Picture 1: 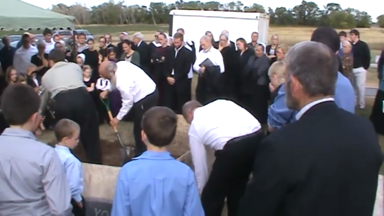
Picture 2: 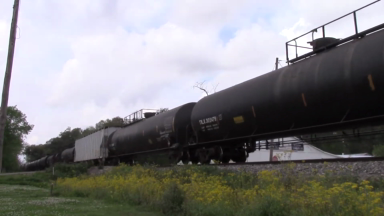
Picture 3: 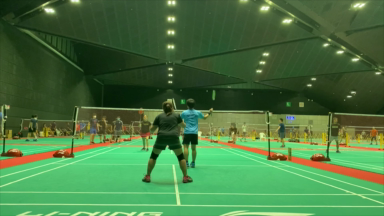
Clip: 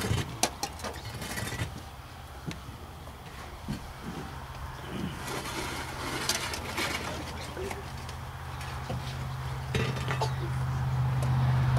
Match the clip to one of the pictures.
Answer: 1